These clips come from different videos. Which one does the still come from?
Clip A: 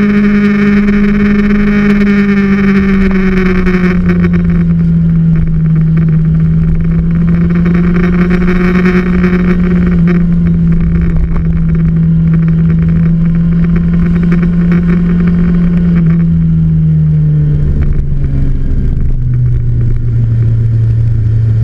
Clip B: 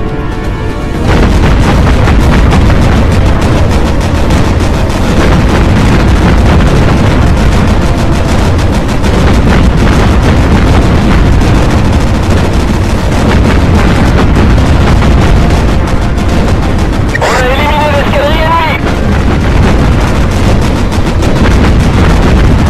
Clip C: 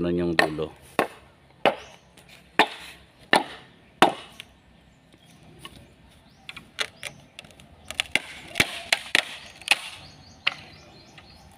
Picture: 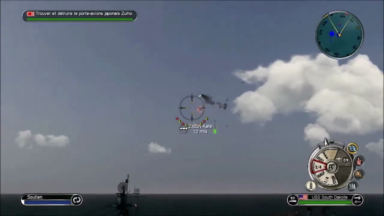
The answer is B